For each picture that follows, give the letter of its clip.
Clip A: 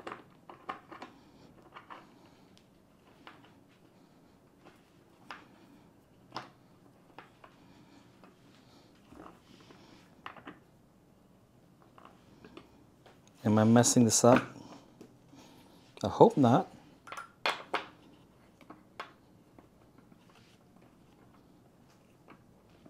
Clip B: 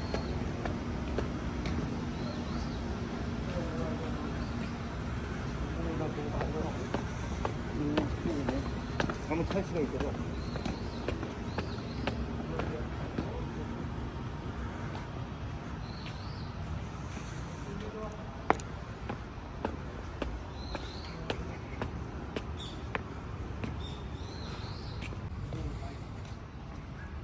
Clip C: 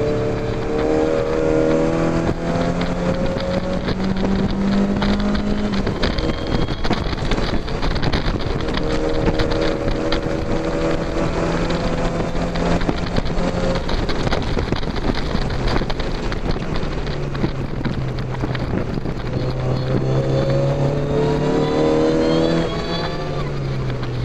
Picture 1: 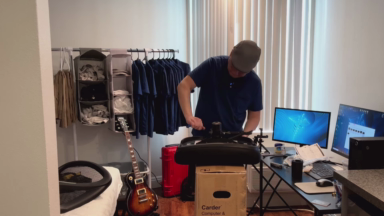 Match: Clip A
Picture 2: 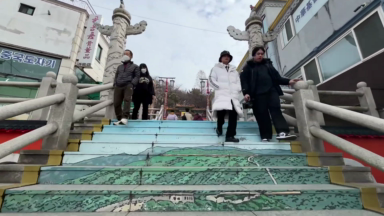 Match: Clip B